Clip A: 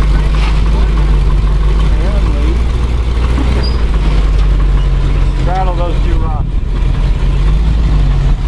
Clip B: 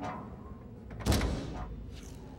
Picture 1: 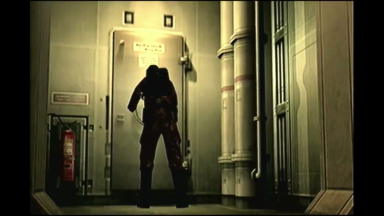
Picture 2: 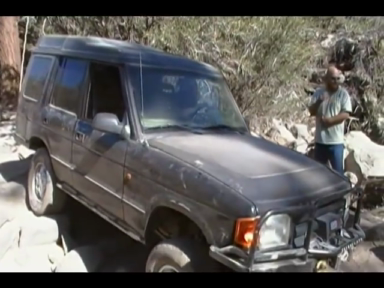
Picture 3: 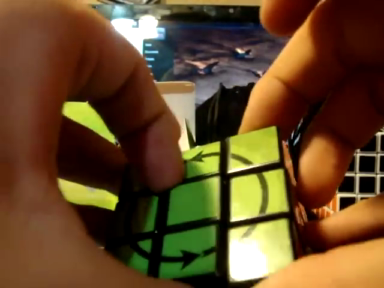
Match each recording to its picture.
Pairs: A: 2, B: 1